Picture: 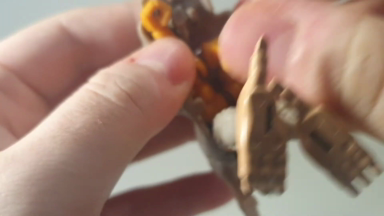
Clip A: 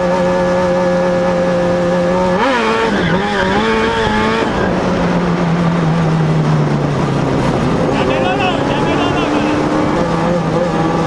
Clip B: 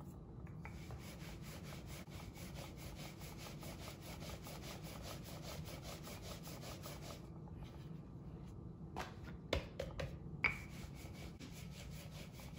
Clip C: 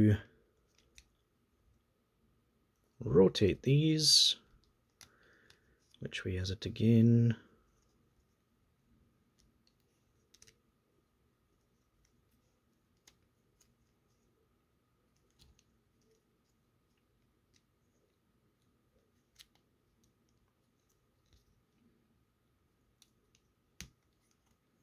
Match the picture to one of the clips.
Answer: C